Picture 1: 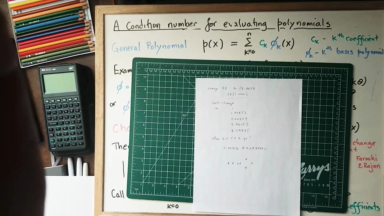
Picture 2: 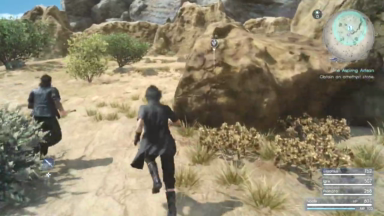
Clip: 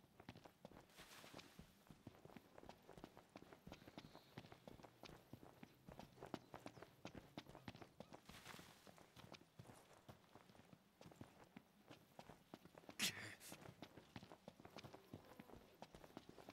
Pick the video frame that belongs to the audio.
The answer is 2